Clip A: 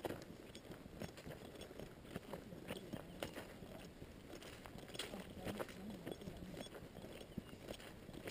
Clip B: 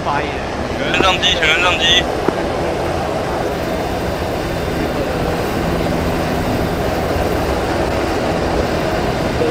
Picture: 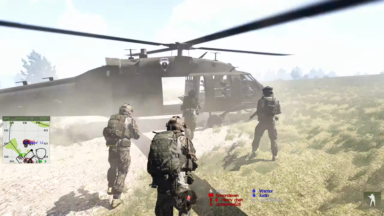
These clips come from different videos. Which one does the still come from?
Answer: B